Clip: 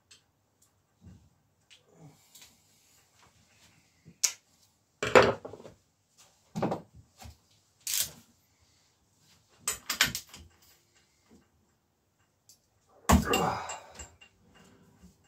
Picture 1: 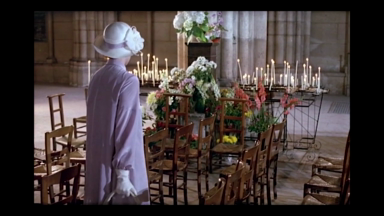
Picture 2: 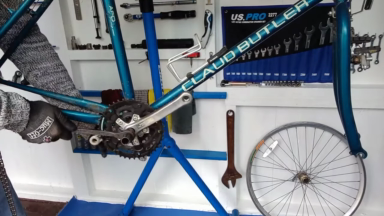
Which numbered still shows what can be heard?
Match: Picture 2